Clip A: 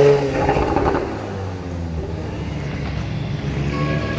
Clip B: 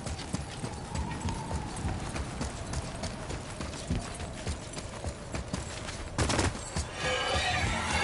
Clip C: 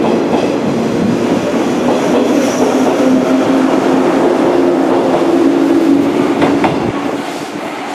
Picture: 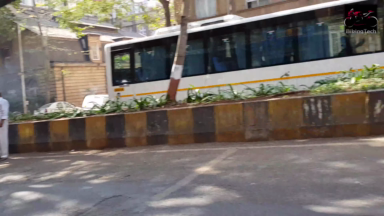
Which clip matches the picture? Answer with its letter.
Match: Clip A